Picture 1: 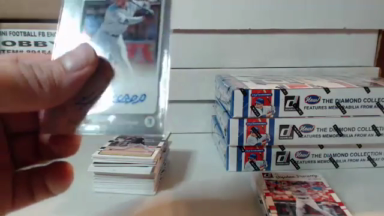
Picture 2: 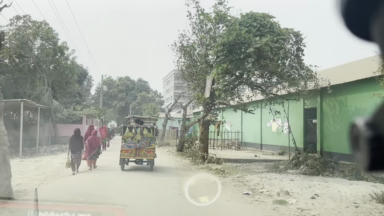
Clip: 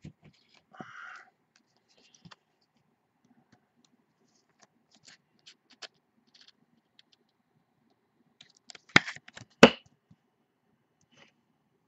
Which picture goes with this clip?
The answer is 1